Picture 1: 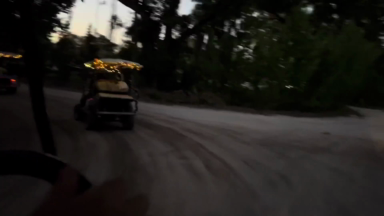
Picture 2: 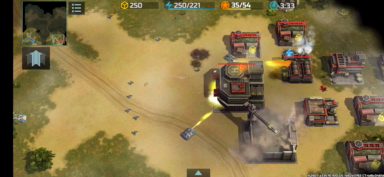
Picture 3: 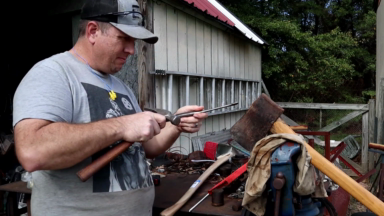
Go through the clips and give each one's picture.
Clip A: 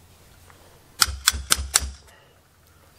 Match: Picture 3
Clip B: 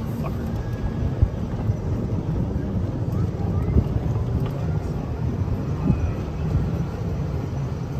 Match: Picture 1